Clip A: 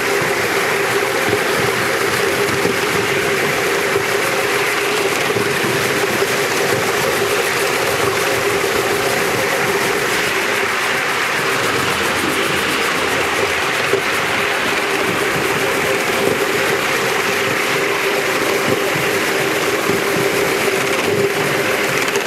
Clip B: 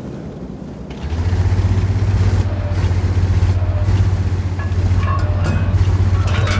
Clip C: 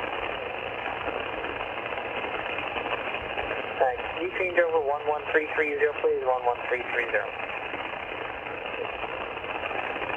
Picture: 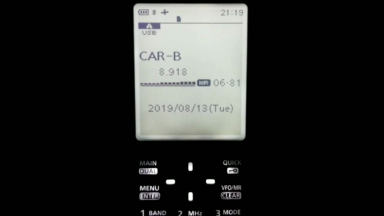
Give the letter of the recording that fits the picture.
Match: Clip C